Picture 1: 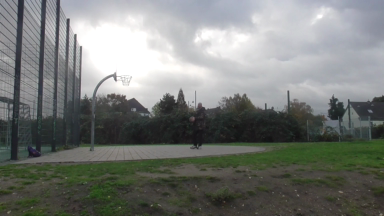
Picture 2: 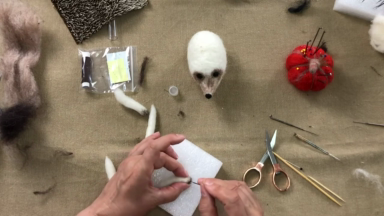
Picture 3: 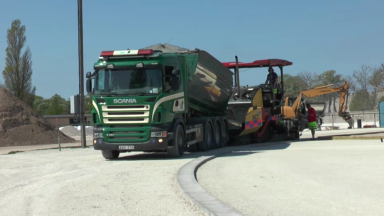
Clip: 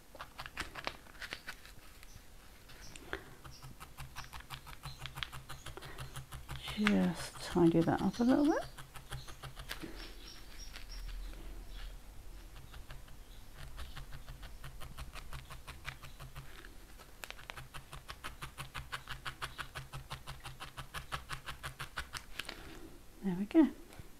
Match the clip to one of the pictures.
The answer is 2